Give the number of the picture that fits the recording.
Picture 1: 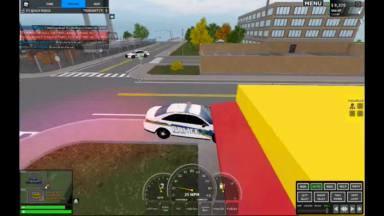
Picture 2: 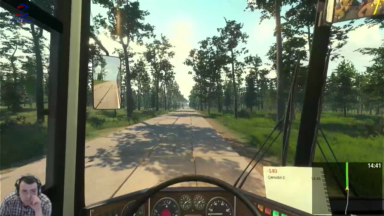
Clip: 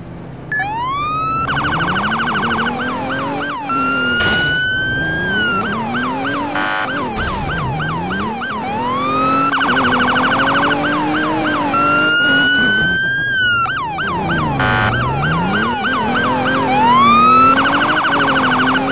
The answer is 1